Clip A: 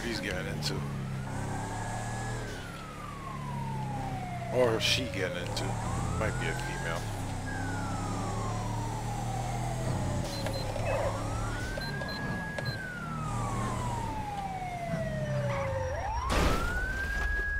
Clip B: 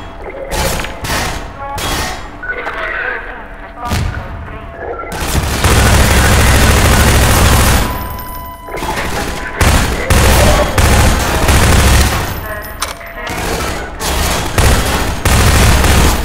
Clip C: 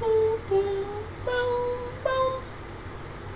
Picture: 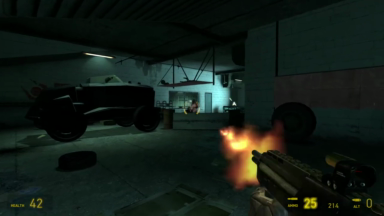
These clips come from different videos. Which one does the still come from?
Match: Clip B